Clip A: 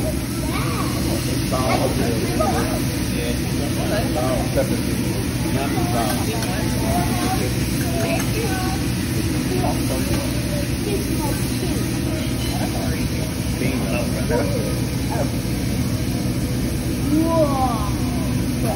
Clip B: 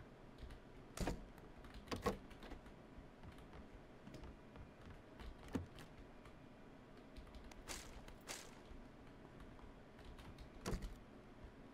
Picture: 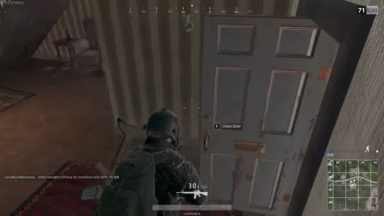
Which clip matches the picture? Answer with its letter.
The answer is B